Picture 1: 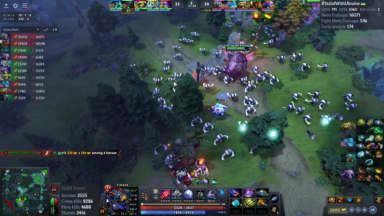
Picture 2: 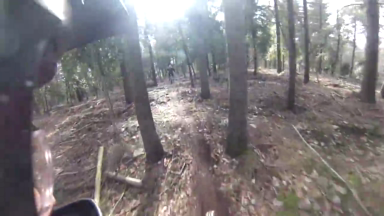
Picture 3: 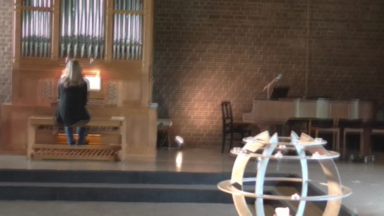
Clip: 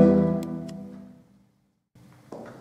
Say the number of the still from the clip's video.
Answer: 3